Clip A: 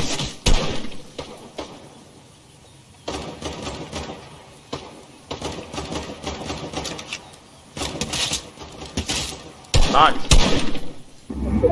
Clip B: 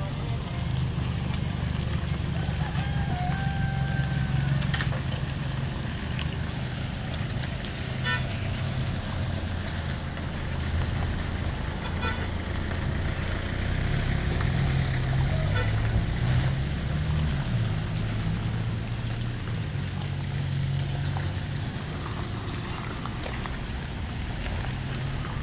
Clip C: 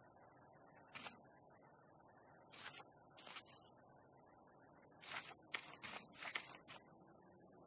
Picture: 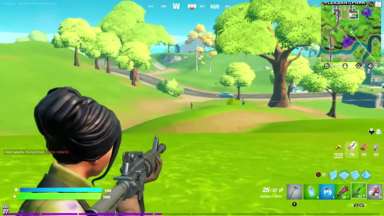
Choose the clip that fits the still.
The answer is A